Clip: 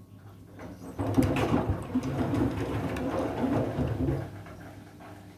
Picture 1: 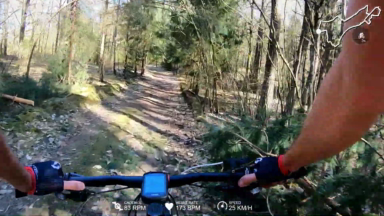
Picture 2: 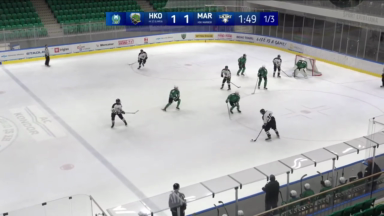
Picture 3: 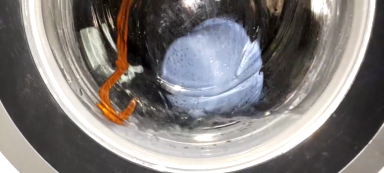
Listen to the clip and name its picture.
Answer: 3